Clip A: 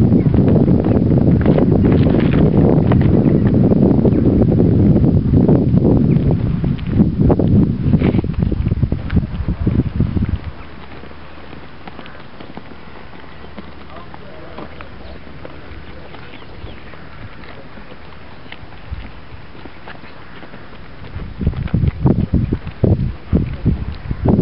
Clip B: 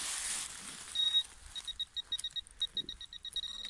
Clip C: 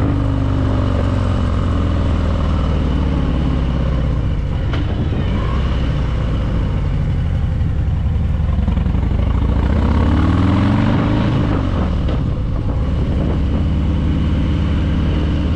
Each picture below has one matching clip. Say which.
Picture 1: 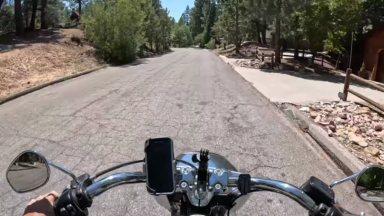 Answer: C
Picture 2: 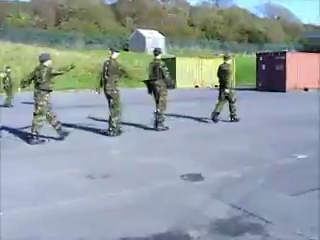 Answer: A